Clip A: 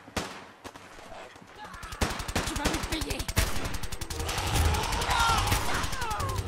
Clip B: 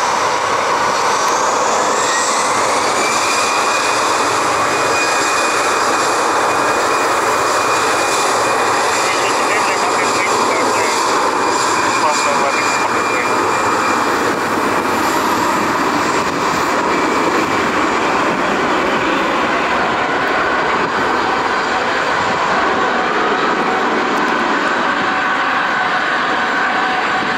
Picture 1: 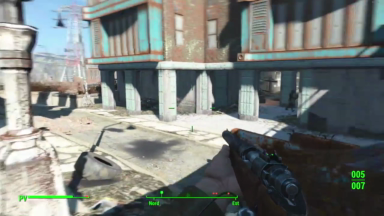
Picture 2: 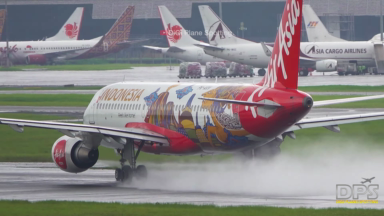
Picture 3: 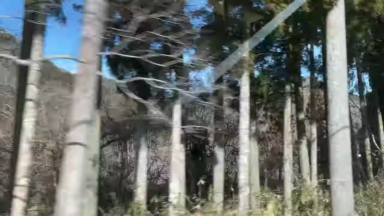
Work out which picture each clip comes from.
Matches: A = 1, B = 2